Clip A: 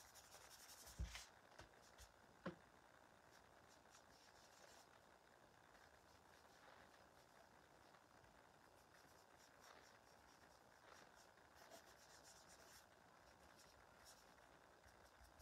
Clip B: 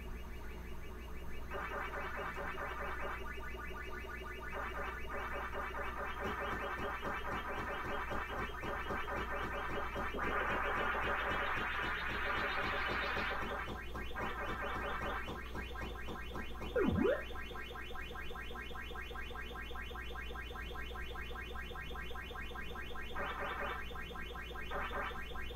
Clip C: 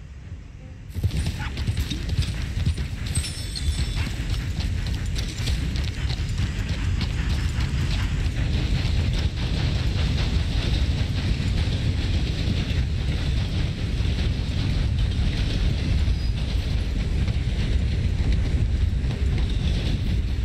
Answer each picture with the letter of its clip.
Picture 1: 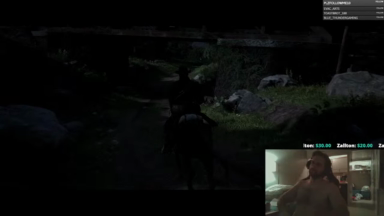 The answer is C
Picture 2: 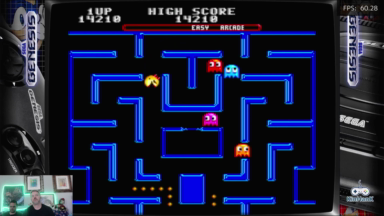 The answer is B